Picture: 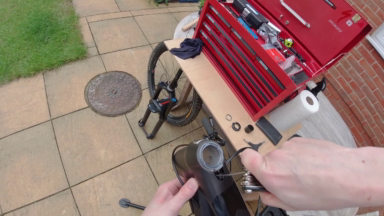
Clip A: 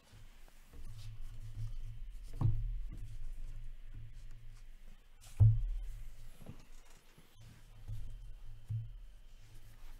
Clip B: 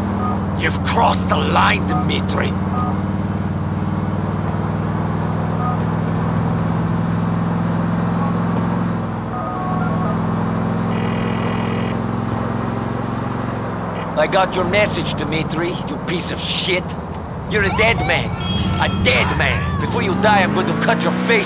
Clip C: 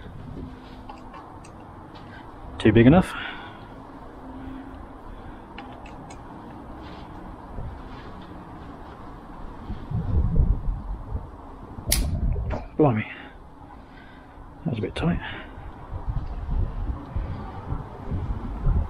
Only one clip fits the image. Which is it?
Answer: C